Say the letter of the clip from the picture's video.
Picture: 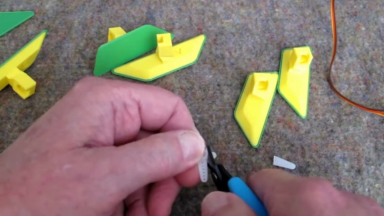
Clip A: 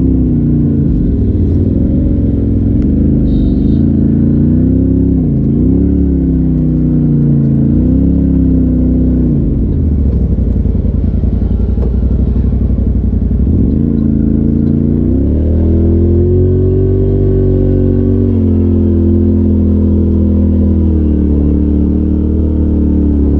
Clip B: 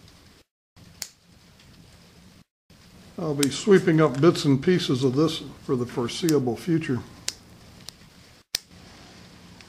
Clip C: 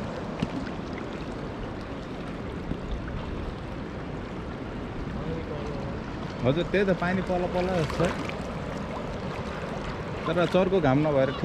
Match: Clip B